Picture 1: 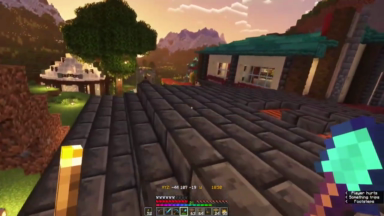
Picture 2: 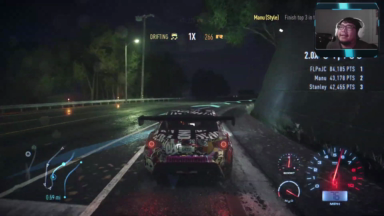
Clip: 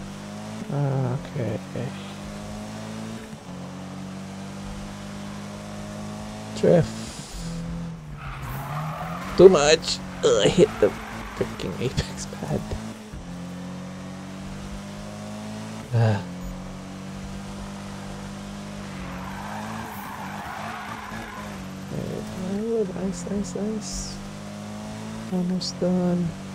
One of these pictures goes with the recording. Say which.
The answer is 2